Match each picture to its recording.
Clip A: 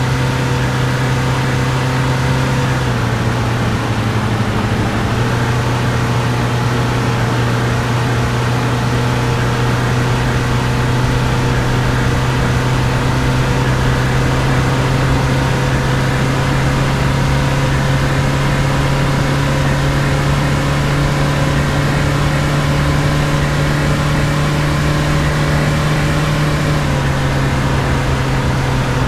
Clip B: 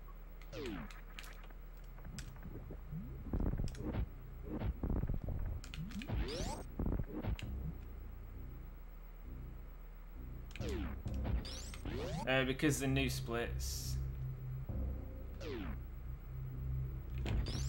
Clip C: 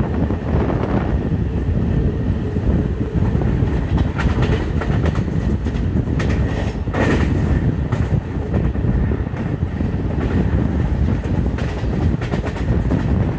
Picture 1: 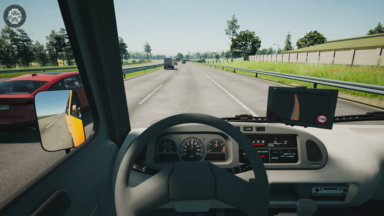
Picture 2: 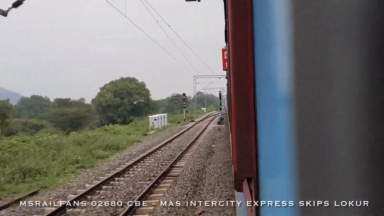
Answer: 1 A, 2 C